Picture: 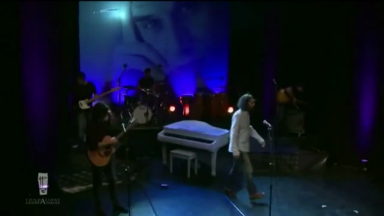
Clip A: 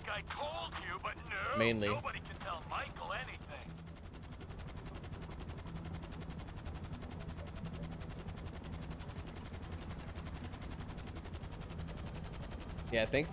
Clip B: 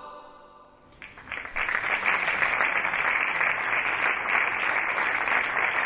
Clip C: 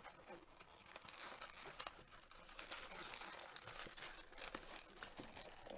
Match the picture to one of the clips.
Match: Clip B